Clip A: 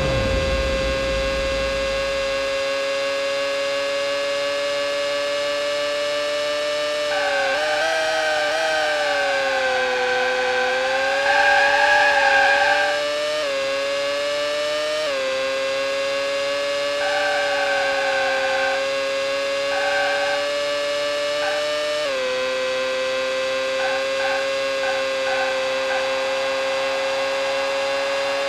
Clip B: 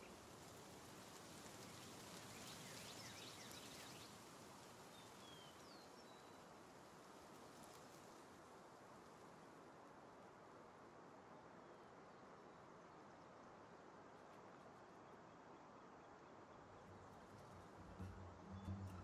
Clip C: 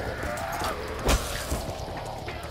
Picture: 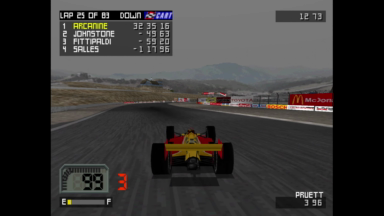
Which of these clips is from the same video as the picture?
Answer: A